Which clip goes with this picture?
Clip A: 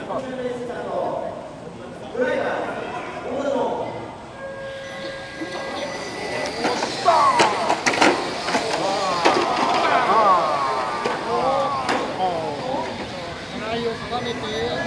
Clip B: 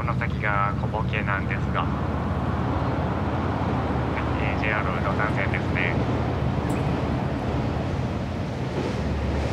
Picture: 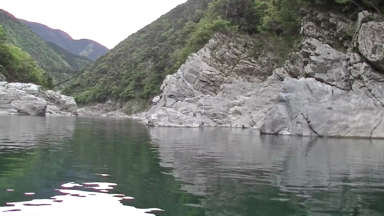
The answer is B